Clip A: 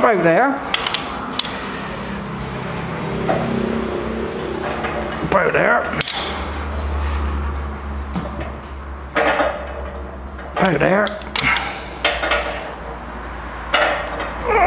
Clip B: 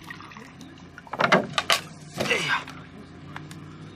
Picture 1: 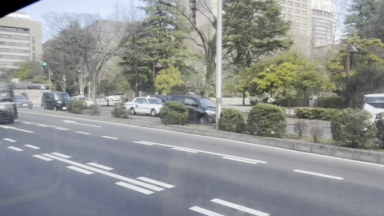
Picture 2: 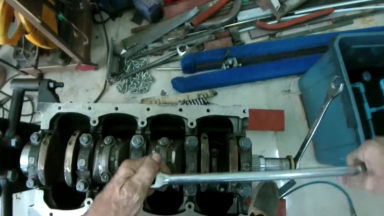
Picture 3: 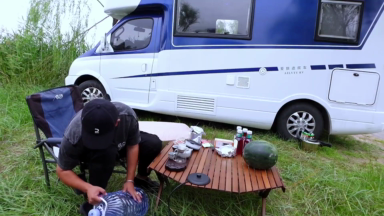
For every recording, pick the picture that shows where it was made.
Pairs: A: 2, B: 3